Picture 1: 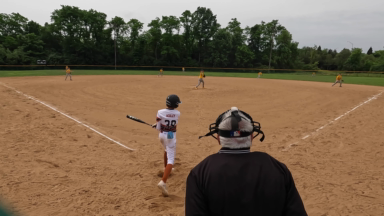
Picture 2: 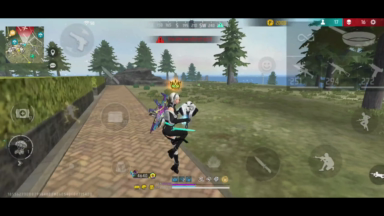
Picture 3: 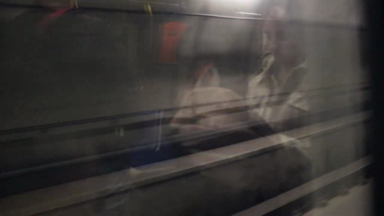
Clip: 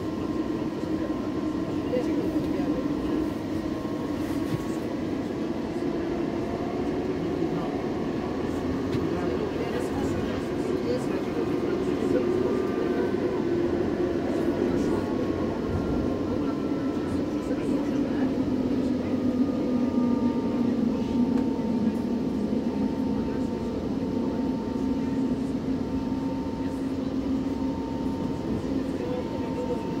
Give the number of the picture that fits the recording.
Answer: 3